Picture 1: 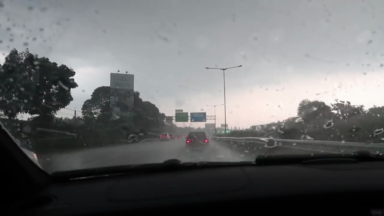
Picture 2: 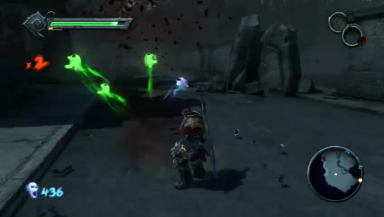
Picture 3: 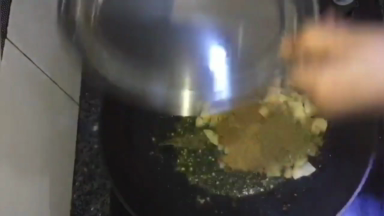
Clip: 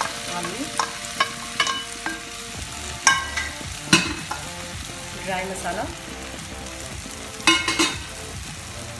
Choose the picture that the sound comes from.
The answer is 3